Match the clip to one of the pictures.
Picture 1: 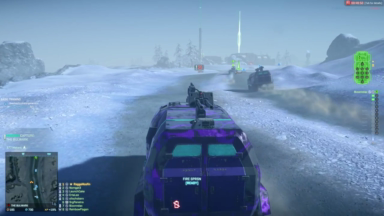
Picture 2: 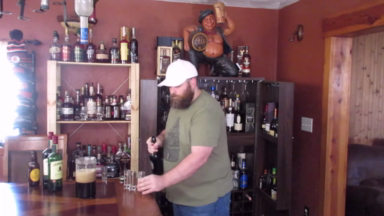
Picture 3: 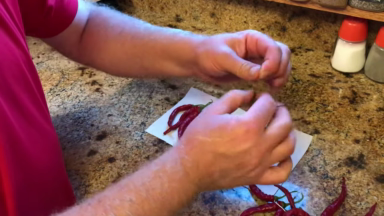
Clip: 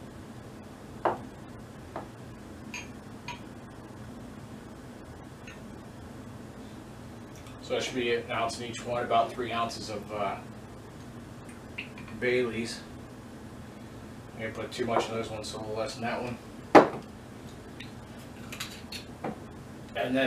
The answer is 2